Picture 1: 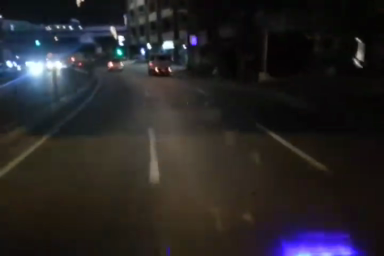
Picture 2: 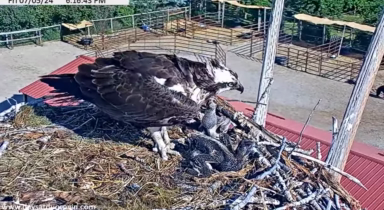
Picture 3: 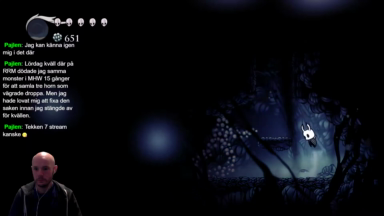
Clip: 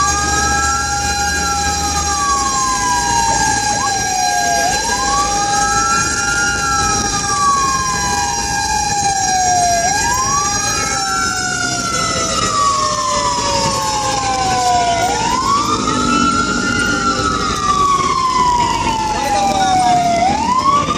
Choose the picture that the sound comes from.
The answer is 1